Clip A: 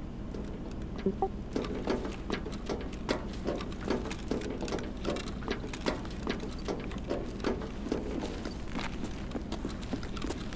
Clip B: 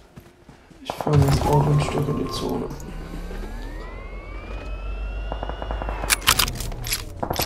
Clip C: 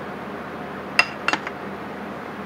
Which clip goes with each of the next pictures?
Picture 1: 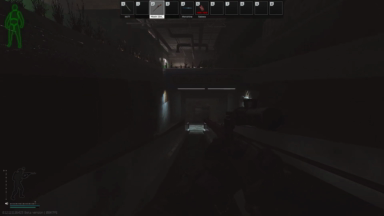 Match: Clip A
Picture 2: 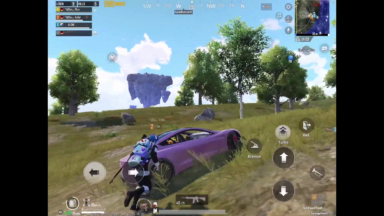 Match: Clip B